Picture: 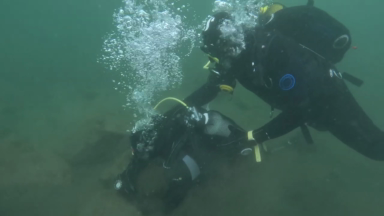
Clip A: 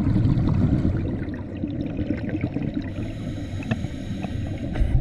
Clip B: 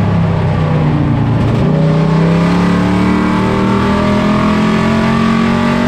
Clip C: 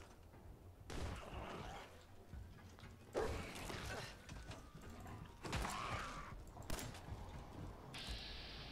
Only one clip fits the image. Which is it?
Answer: A